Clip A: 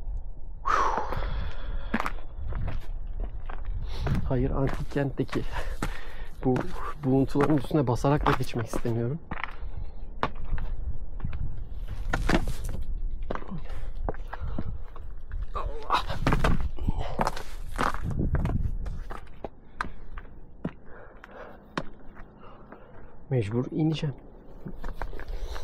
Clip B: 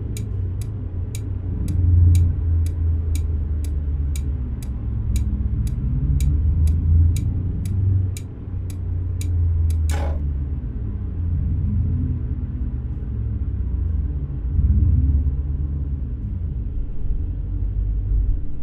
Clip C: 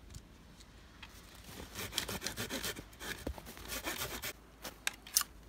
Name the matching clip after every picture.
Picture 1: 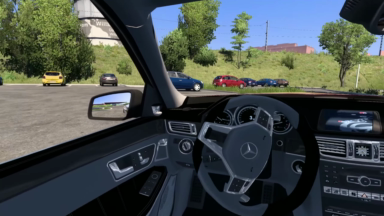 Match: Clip B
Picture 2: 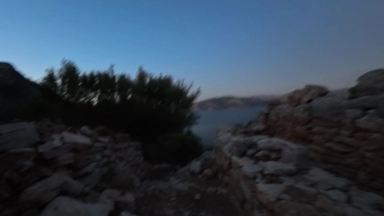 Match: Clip A